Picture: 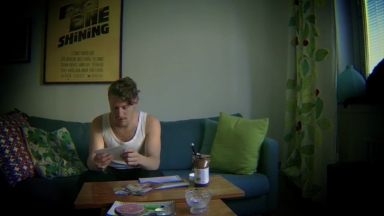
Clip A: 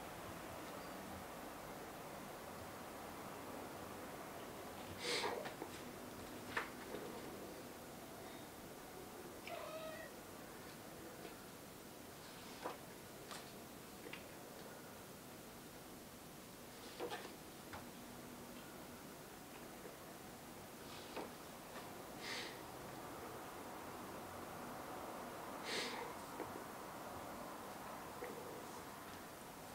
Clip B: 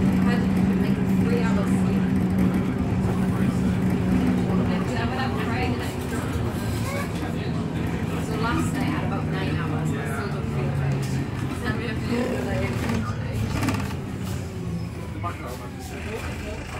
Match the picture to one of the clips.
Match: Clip A